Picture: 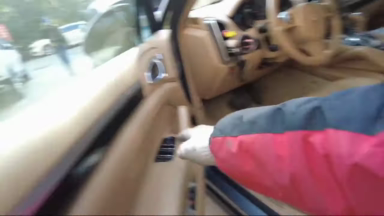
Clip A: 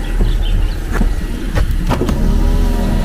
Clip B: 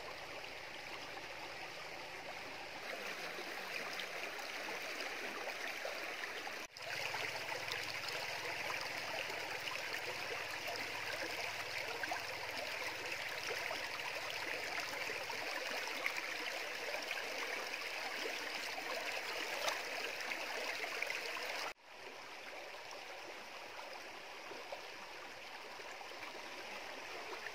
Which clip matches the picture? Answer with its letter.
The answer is A